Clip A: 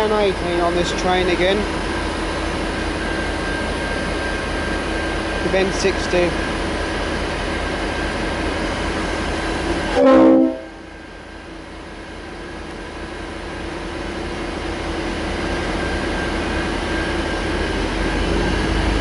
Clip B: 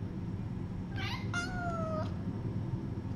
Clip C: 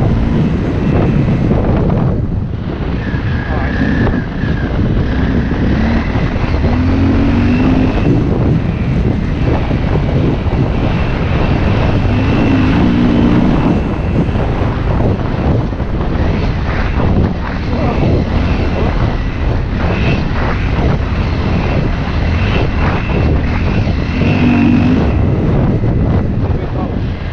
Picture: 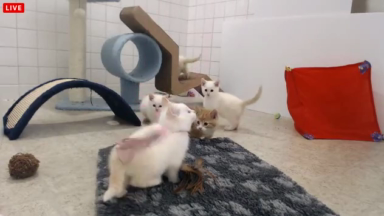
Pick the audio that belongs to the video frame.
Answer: B